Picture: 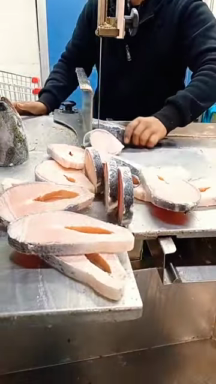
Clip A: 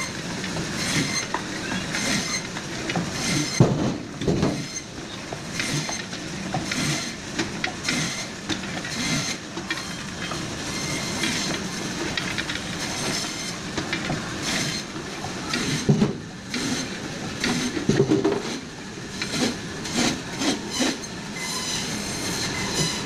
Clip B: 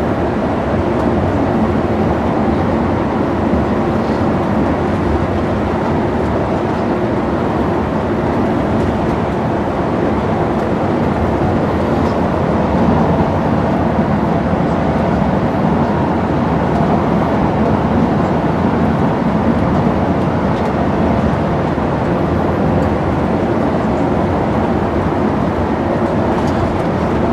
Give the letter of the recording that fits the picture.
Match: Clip A